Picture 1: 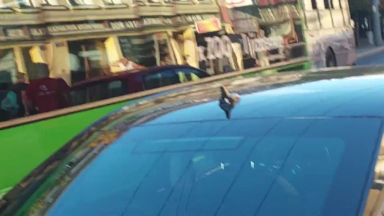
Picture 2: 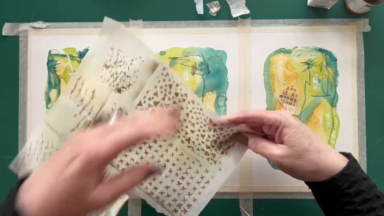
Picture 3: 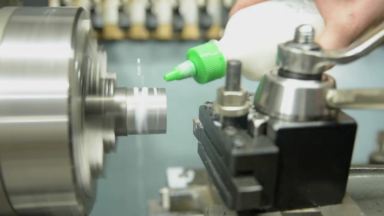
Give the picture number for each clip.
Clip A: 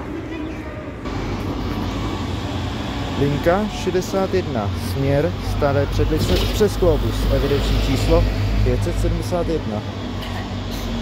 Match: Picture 1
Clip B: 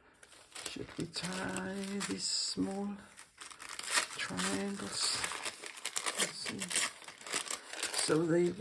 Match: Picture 2